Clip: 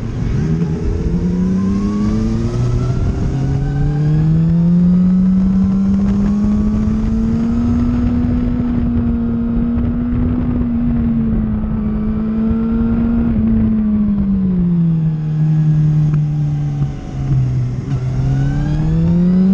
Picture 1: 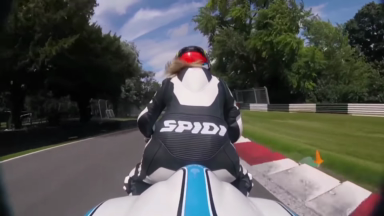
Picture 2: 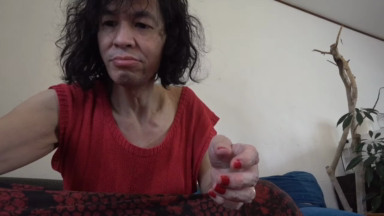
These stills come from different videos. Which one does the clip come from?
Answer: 1